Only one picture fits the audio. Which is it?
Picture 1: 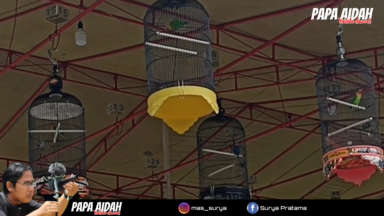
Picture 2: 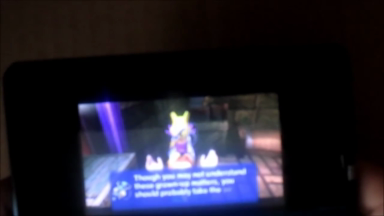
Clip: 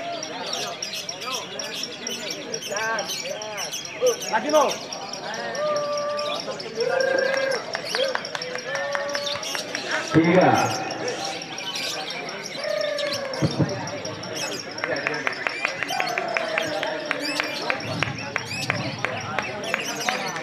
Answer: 1